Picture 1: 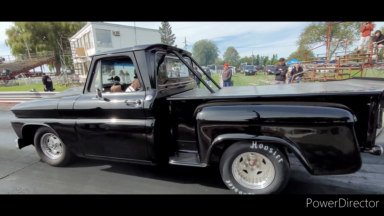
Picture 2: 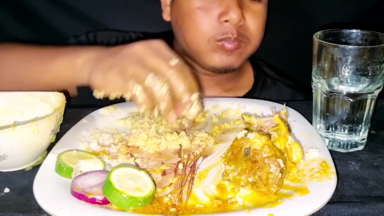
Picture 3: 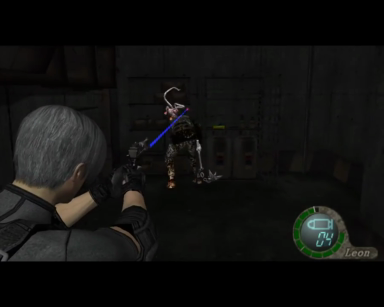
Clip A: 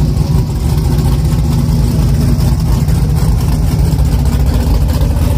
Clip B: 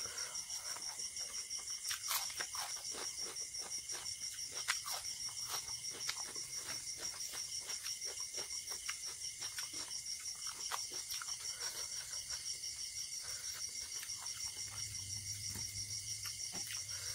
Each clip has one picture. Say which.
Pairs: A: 1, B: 2